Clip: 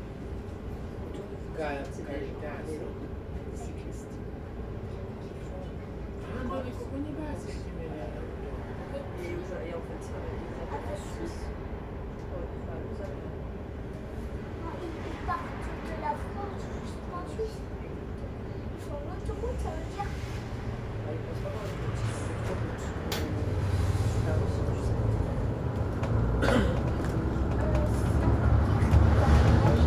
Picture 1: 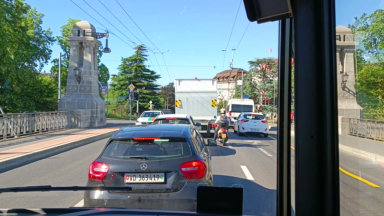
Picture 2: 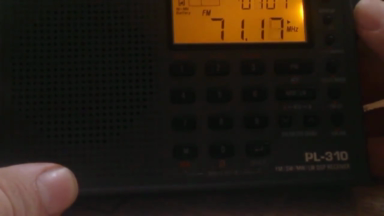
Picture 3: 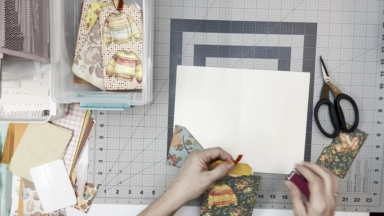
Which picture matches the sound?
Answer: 1